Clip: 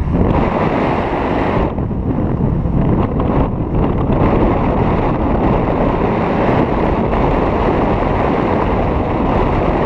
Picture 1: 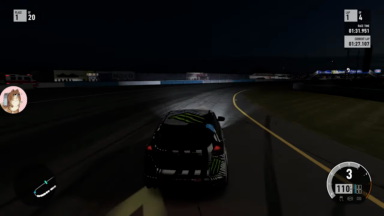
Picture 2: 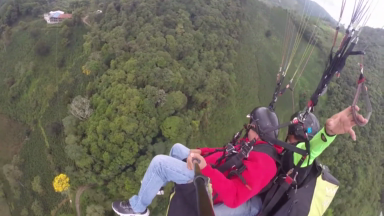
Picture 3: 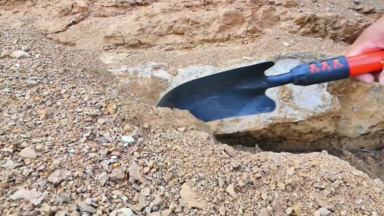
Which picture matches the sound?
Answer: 2